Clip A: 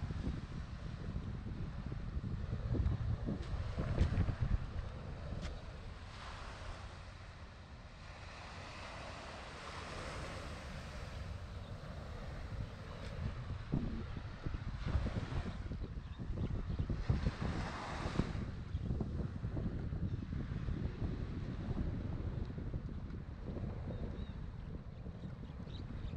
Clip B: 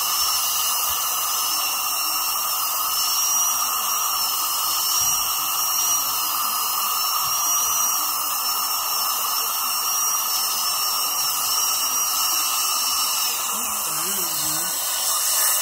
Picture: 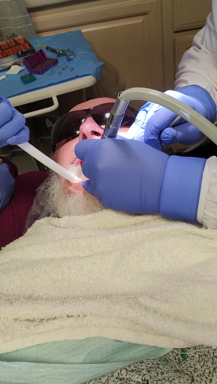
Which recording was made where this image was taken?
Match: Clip B